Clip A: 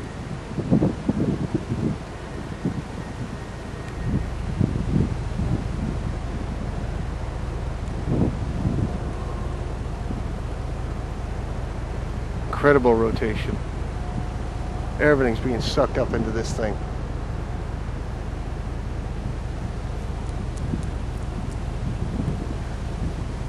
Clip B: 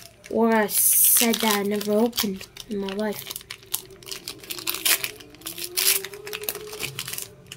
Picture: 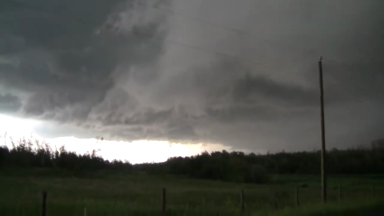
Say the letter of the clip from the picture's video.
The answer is A